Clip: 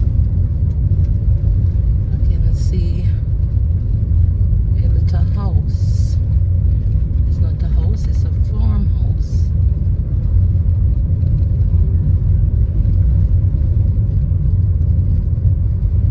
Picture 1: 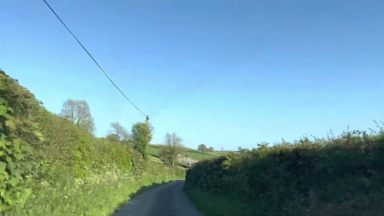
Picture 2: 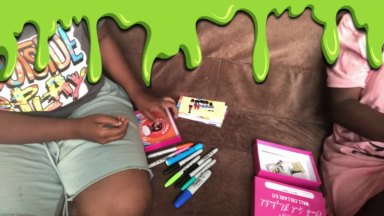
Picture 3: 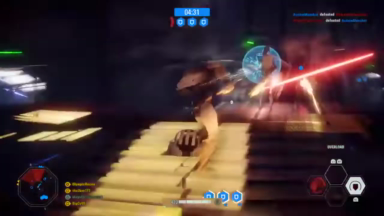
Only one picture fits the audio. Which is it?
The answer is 1